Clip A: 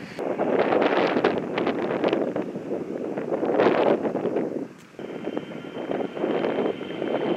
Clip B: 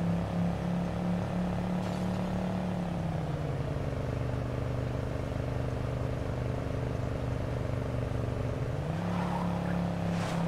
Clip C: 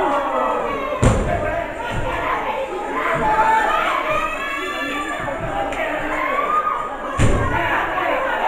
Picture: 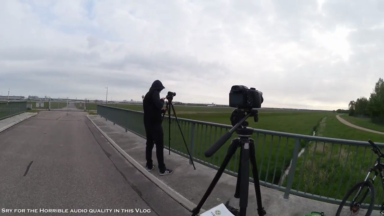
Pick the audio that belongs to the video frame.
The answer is A